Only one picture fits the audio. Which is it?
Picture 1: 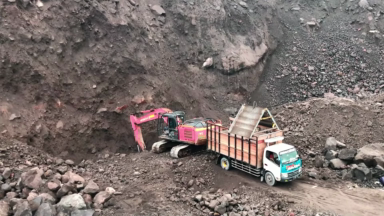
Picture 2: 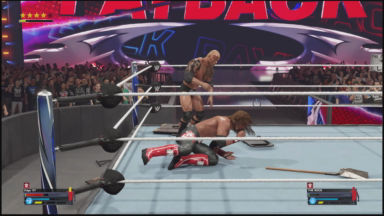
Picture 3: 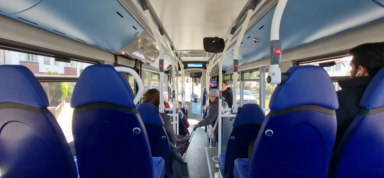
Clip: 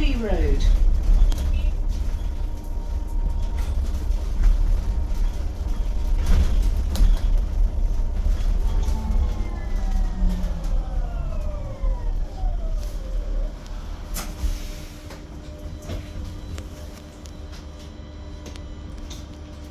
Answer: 3